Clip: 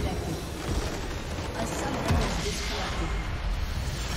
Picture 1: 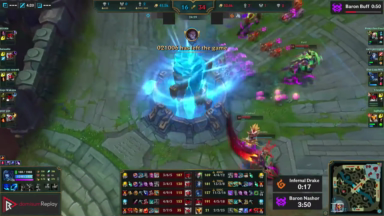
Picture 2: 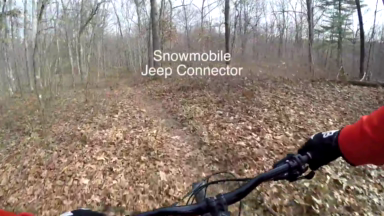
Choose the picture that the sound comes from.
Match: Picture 1